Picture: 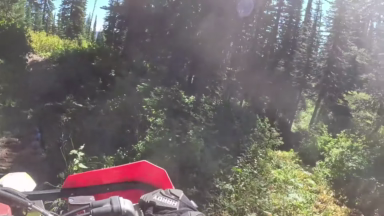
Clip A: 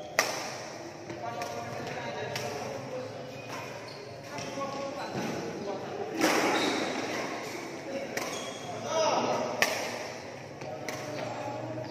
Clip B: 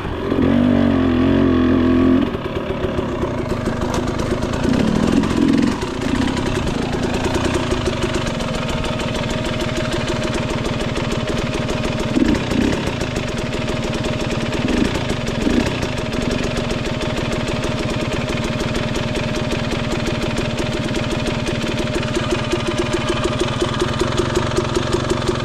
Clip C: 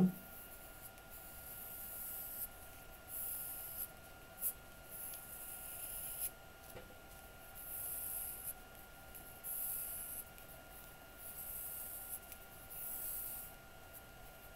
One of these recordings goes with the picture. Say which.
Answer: B